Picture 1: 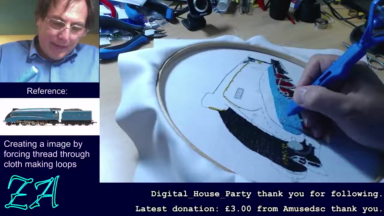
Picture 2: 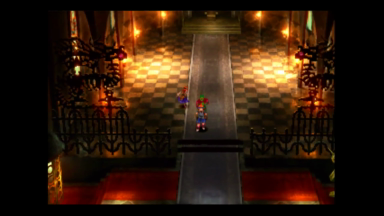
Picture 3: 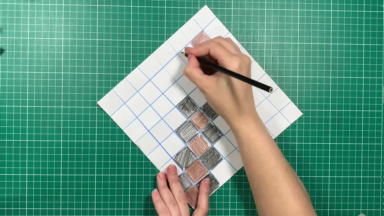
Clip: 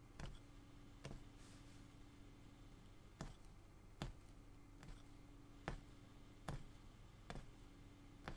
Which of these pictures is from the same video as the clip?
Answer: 1